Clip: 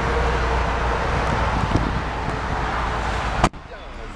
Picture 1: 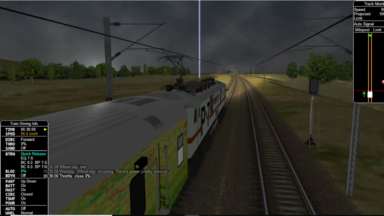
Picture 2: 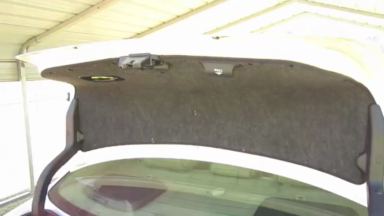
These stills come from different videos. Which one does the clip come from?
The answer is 2